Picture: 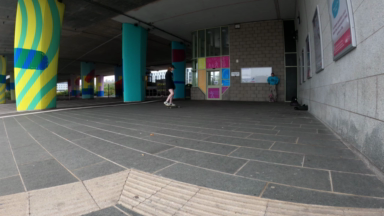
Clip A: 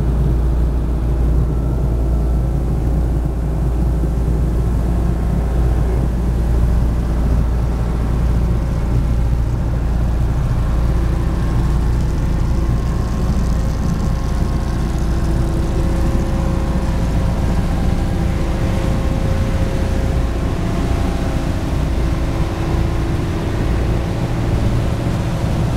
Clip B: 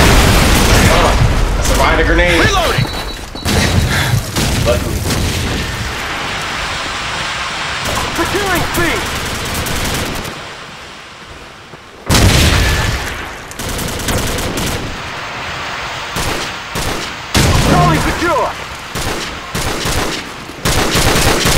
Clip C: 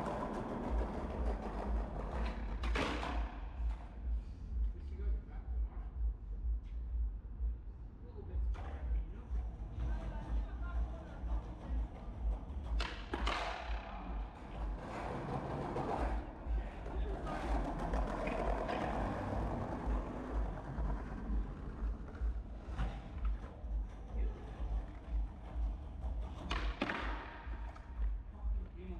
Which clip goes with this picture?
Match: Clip C